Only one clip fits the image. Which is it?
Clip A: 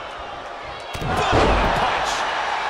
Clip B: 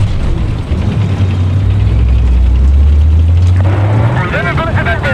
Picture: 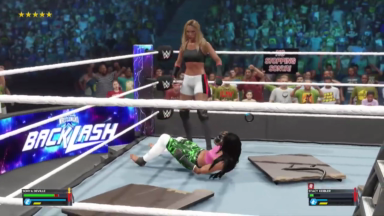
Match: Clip A